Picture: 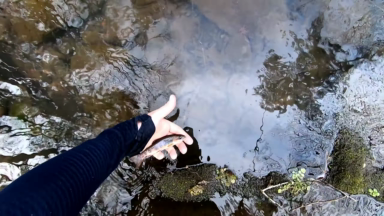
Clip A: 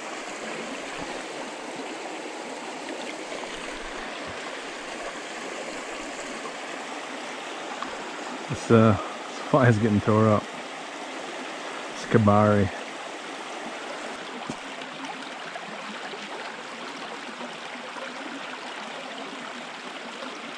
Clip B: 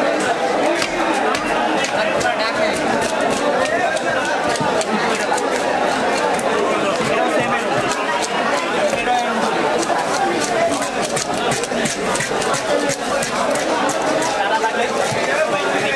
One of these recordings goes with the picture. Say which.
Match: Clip A